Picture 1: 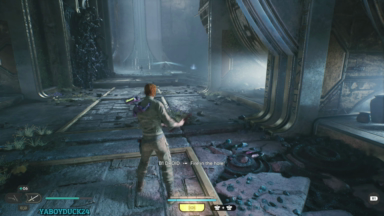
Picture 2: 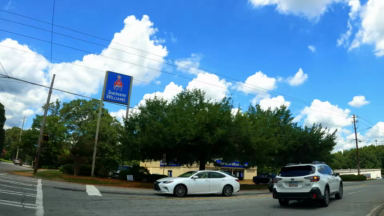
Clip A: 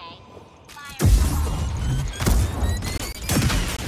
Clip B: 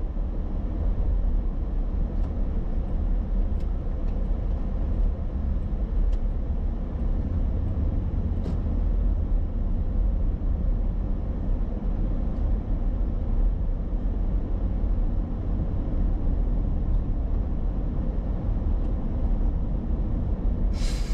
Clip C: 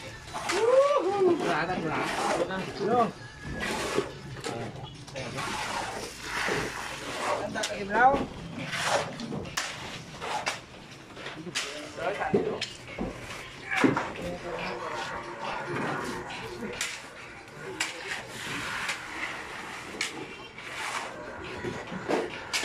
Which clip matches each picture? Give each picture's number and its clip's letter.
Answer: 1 A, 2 B